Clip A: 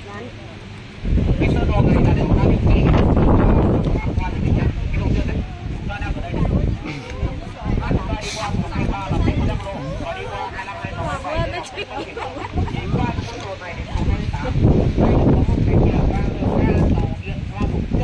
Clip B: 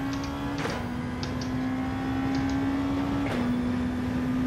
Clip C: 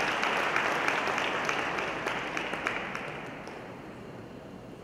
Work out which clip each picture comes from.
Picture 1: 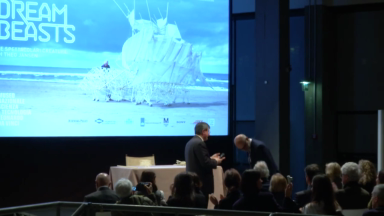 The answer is C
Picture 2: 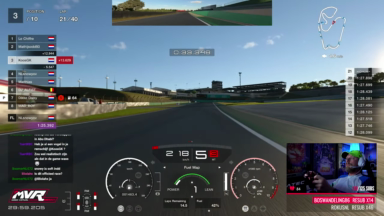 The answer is B